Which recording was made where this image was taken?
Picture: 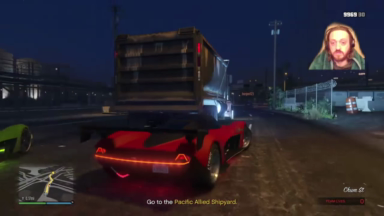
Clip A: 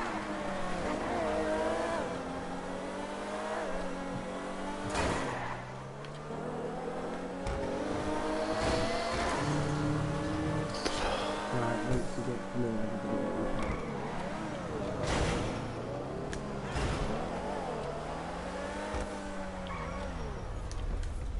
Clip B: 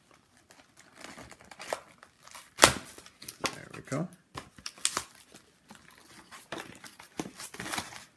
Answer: A